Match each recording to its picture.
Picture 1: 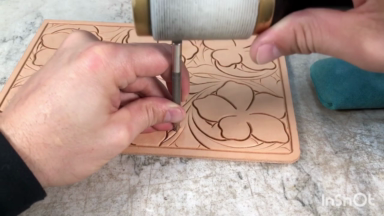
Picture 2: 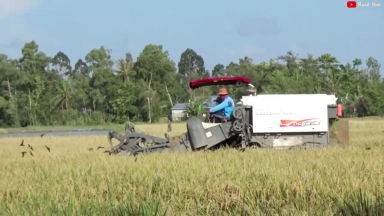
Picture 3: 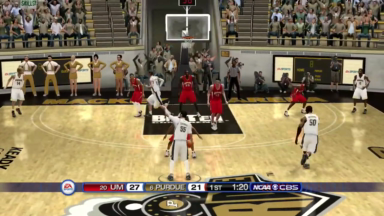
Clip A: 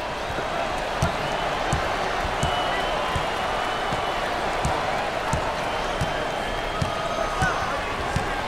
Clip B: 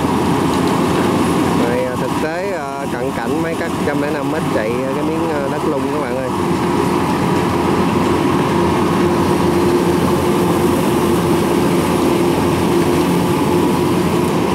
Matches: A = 3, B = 2